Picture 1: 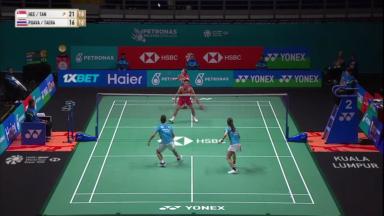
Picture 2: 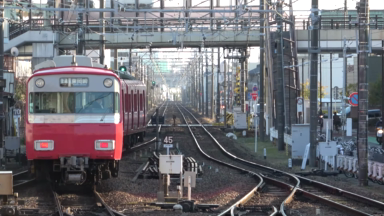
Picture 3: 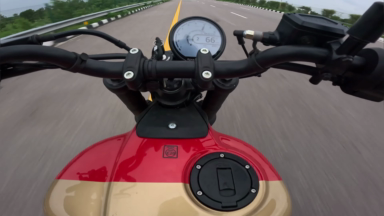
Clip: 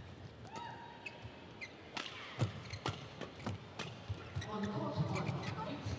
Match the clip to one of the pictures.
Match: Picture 1